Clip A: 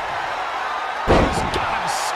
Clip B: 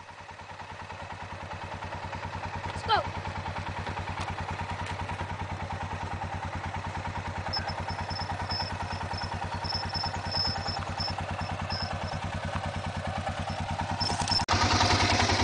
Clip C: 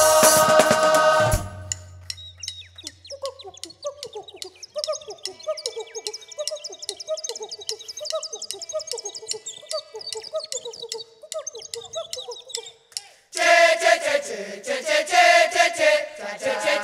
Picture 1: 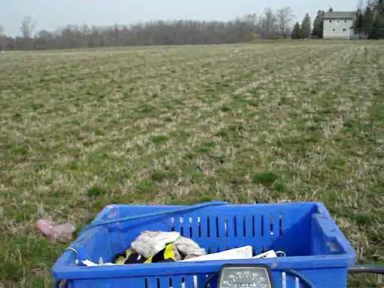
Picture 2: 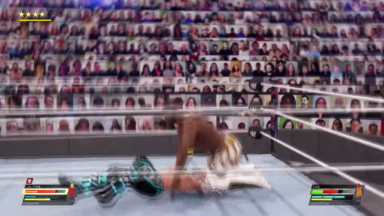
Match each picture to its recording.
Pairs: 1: B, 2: A